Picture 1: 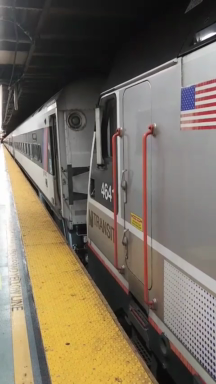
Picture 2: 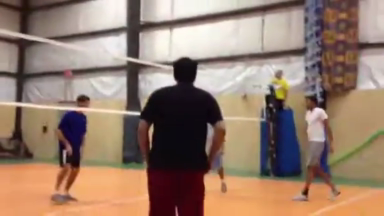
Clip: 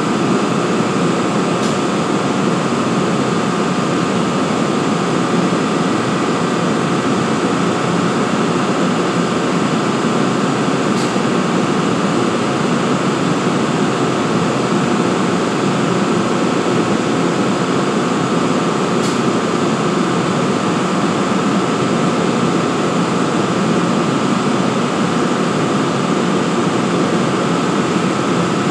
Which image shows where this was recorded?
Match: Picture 1